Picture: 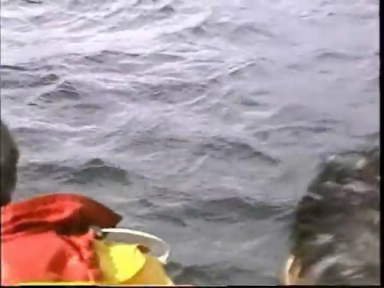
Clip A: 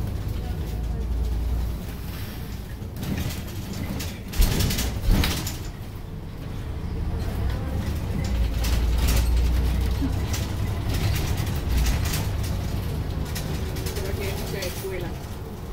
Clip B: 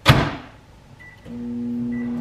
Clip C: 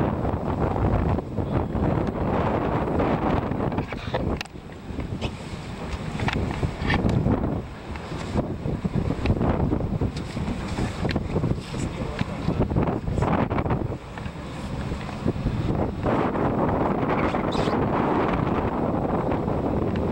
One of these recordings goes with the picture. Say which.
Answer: C